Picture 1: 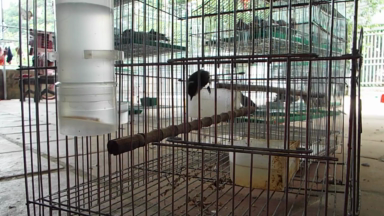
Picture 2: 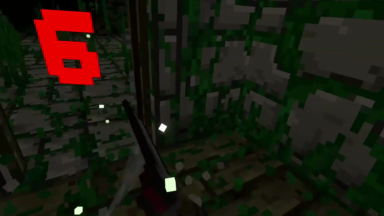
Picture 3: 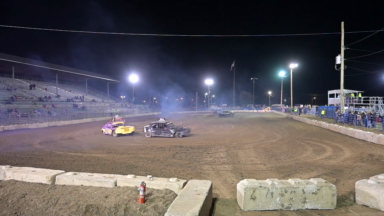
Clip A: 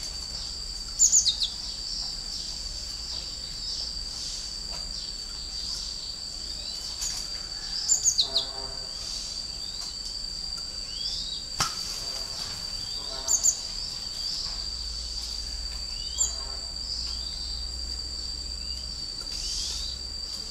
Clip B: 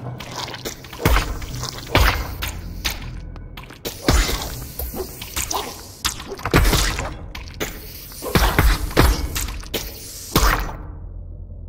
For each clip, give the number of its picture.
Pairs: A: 1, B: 2